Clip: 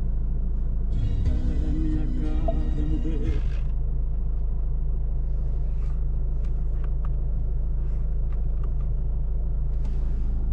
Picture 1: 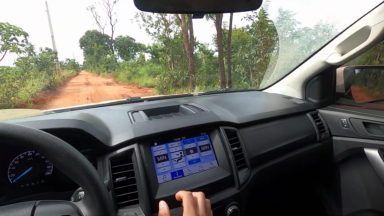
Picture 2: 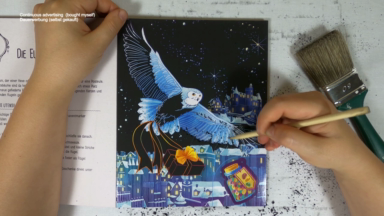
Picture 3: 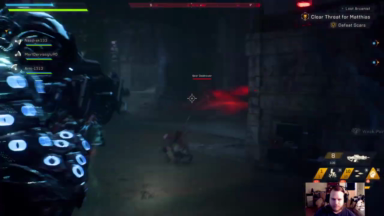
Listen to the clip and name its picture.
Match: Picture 1